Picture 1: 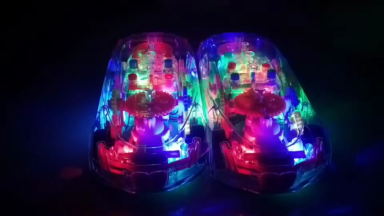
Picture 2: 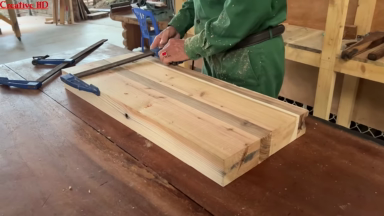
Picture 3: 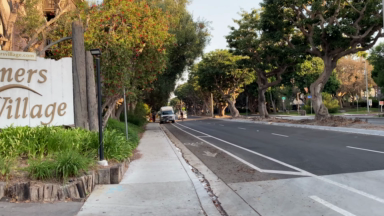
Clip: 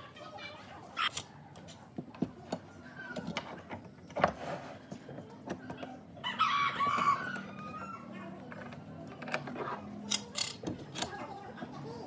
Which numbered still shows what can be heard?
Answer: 2